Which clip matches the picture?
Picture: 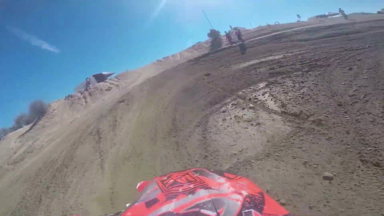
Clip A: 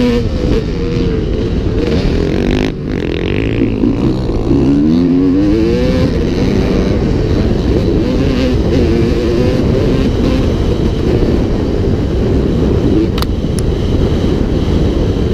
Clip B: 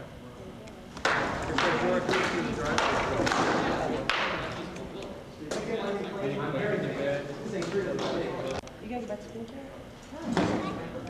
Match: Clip A